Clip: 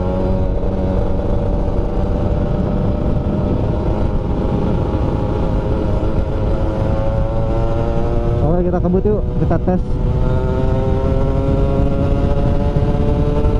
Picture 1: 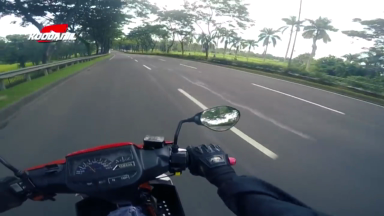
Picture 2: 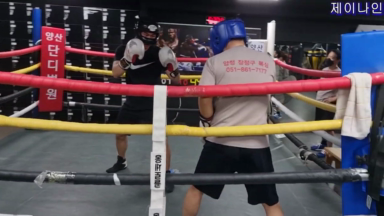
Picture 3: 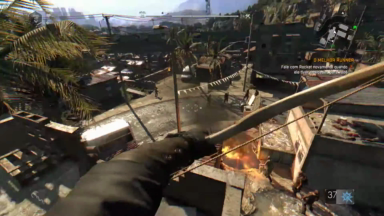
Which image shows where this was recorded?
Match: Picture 1